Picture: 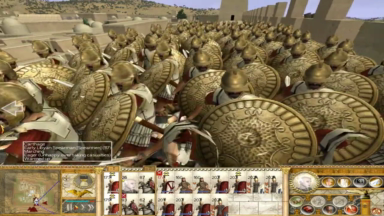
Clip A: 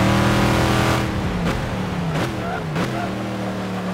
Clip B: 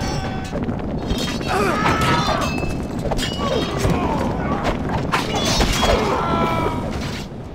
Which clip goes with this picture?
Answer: B